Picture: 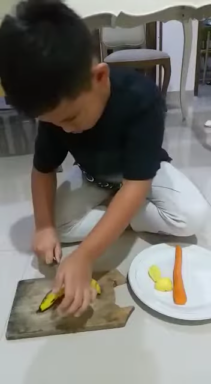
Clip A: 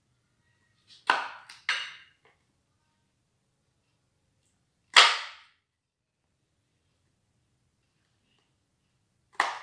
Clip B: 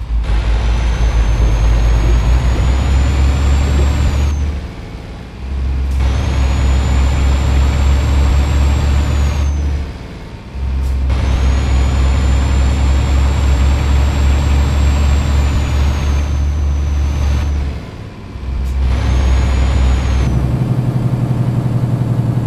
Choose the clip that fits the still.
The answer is A